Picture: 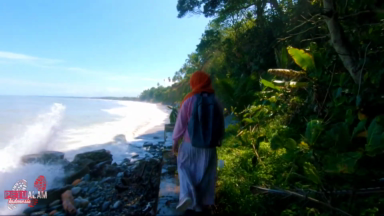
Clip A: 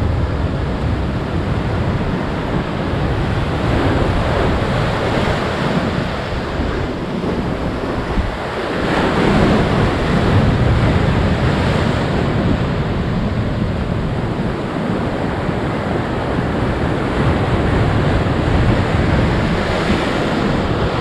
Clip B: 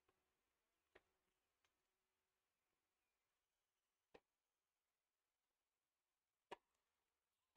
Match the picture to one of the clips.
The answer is A